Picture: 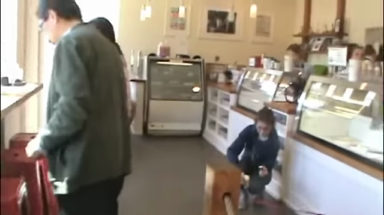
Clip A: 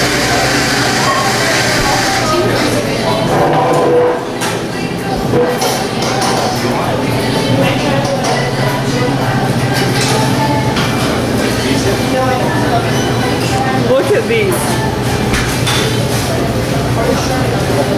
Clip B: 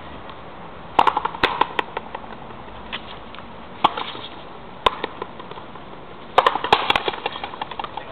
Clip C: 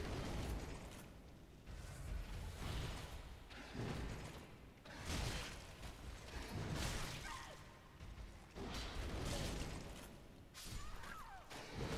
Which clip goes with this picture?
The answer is A